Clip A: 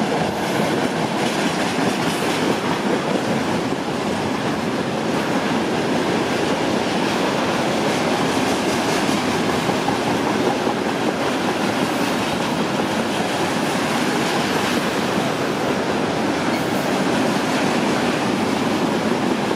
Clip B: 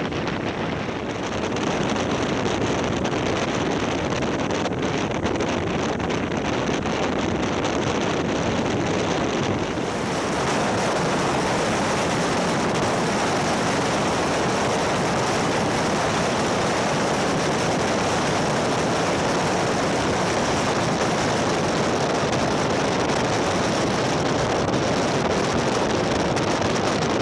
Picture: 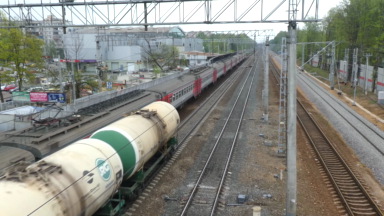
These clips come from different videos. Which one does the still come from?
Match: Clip A